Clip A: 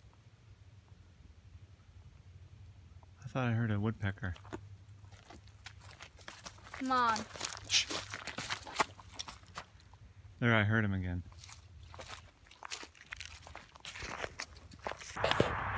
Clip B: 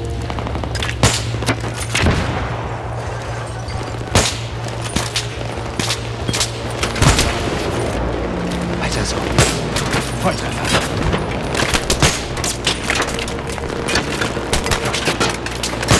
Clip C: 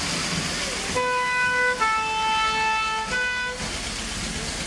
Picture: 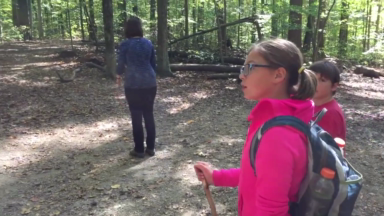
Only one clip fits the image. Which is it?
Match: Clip A